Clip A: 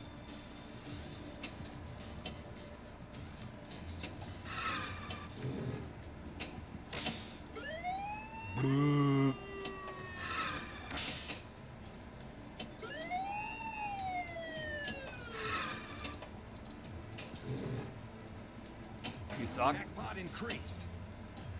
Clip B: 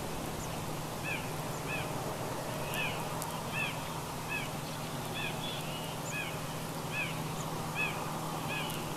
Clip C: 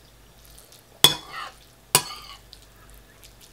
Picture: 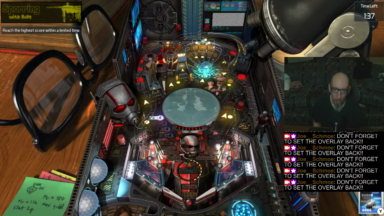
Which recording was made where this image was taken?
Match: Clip A